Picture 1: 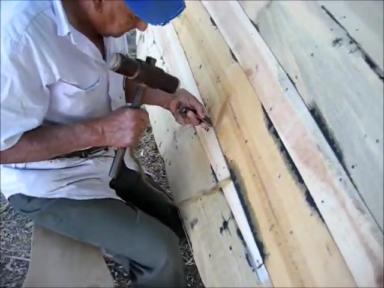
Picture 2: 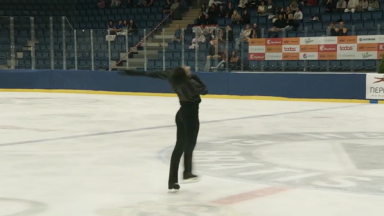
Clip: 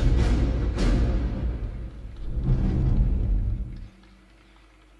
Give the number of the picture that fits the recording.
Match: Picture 2